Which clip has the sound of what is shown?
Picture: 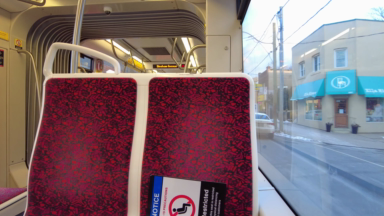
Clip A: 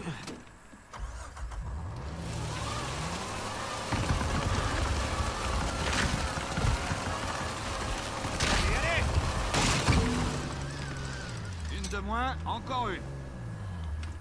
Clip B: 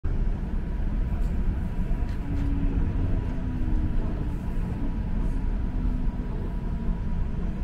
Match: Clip B